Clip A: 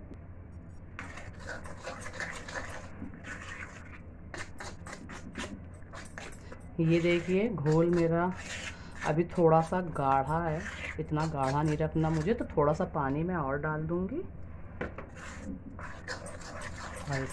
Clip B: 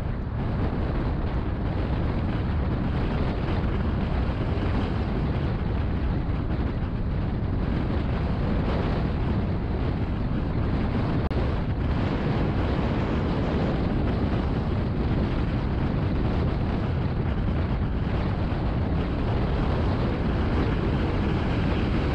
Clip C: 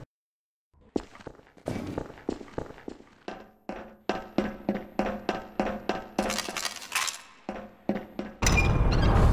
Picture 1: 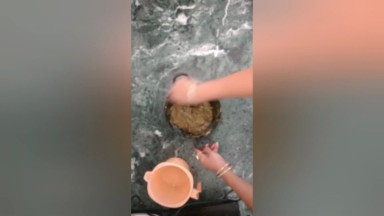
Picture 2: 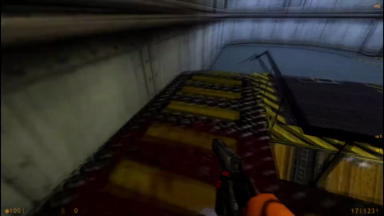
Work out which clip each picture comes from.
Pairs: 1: A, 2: C